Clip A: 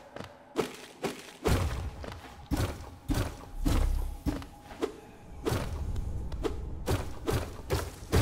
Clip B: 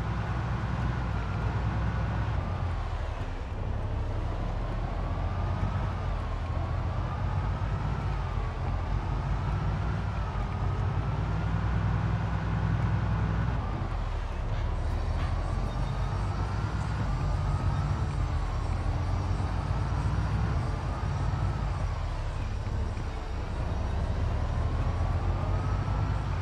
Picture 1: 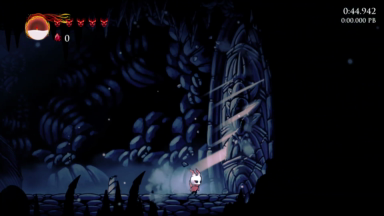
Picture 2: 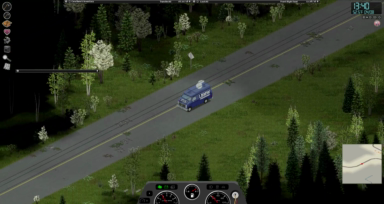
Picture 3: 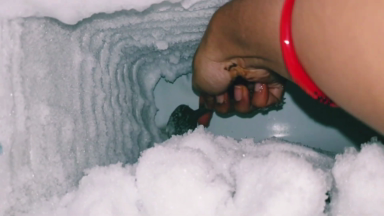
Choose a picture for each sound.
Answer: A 1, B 2